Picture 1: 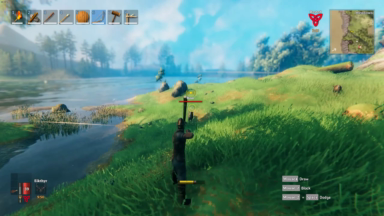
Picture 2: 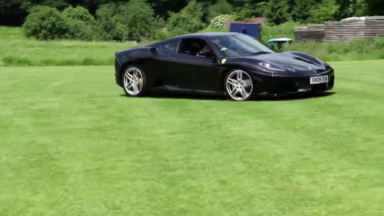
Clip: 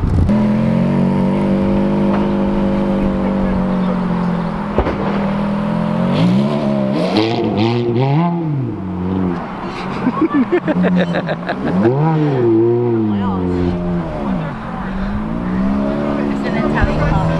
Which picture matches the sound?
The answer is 2